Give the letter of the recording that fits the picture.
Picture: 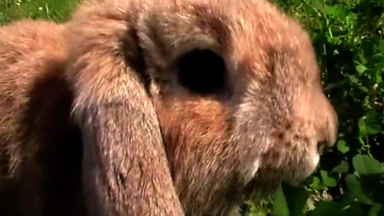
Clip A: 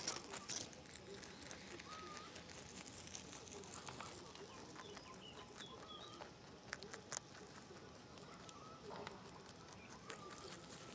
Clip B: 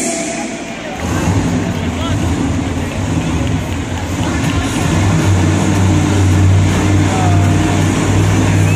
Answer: A